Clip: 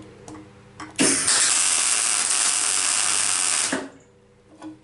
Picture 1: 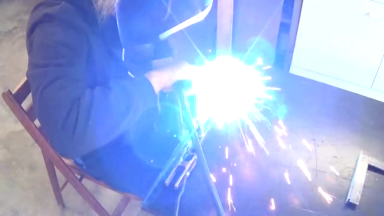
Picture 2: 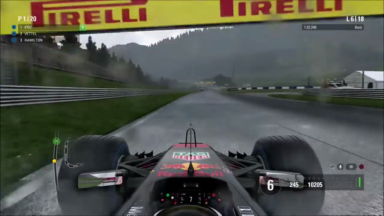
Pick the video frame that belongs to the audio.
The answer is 1